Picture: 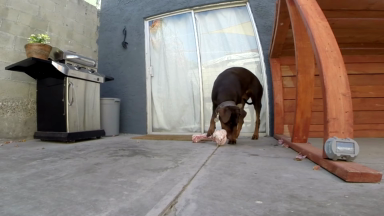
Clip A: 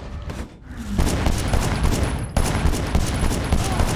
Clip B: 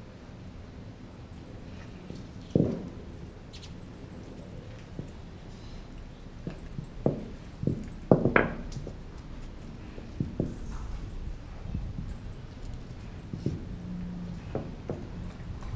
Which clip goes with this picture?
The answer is B